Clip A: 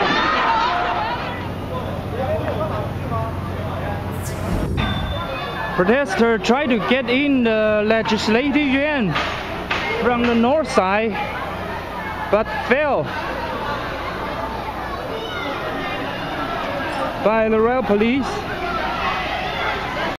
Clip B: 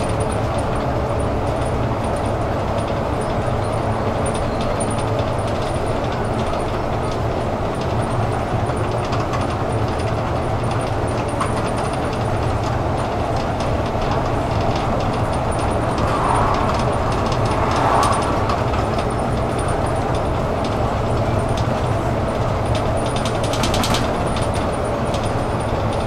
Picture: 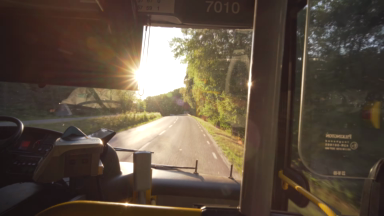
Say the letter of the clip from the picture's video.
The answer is B